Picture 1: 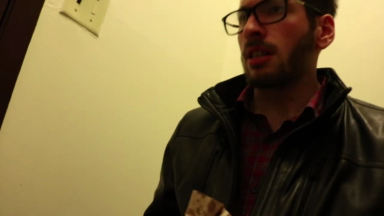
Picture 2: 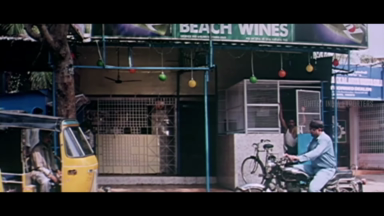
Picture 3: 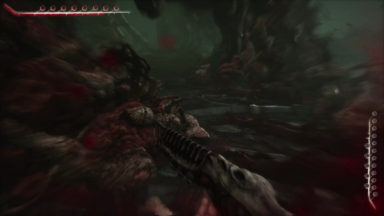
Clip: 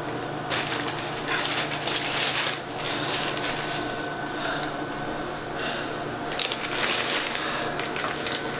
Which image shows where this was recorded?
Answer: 1